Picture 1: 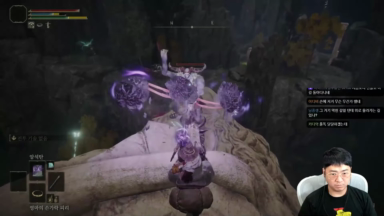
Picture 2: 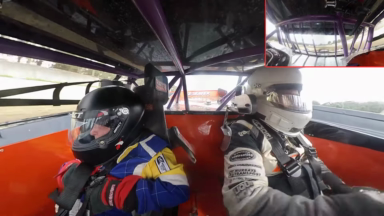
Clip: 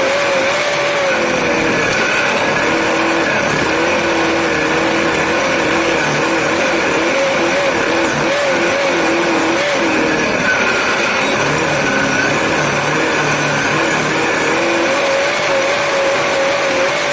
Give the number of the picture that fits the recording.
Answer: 2